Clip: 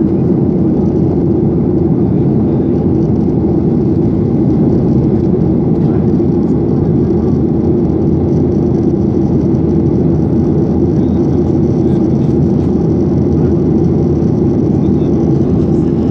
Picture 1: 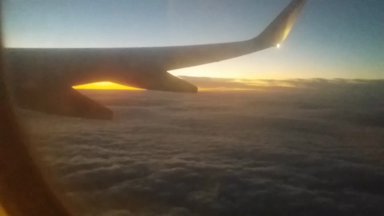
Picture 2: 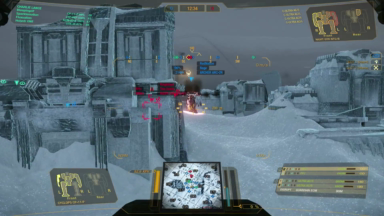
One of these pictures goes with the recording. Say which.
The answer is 1